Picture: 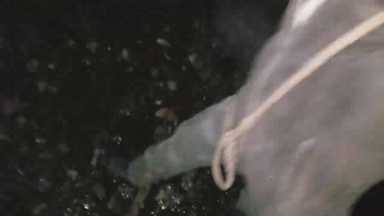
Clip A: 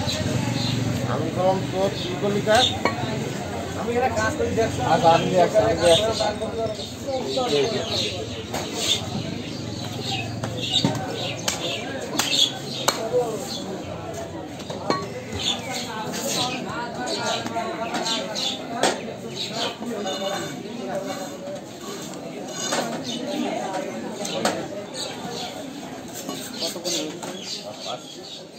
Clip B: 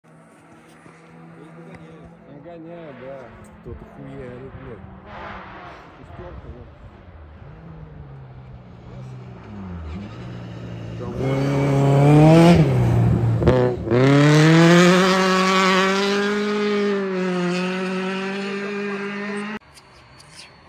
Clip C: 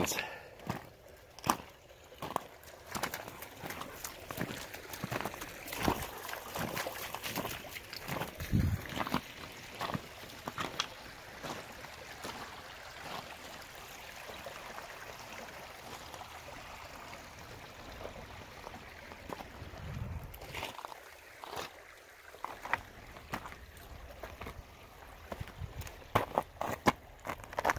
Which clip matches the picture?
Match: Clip C